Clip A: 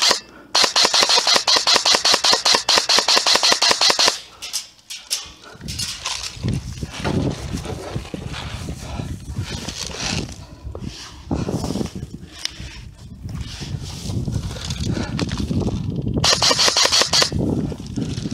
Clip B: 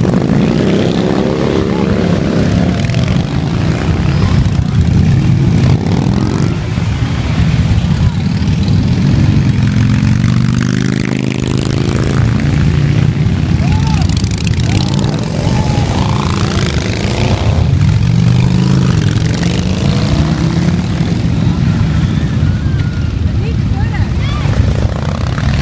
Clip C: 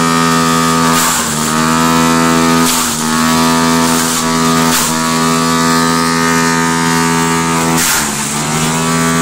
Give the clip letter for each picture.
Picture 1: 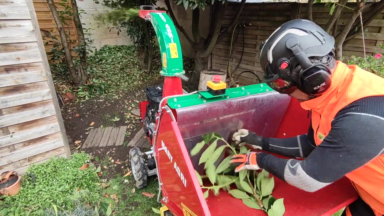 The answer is C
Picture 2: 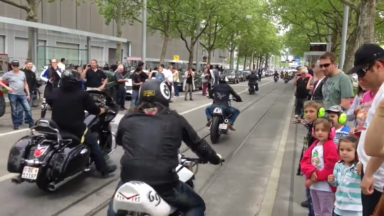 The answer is B